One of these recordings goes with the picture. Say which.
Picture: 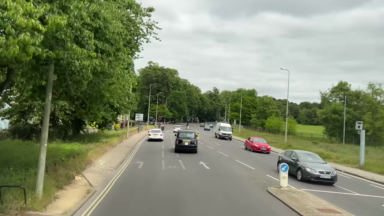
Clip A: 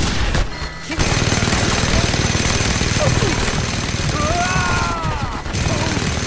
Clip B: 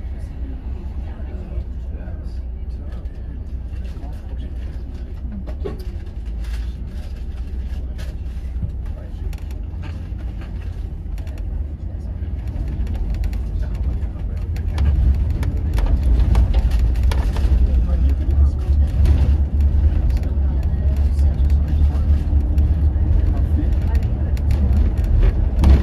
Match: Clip B